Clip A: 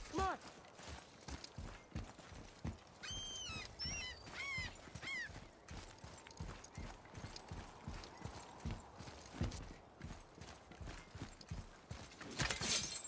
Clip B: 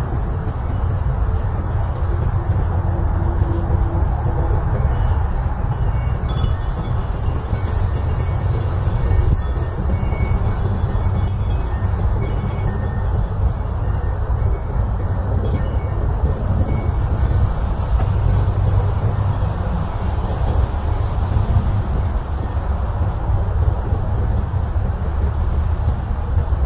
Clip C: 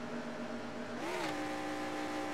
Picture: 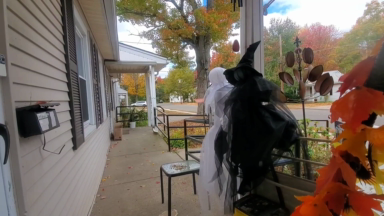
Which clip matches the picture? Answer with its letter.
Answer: B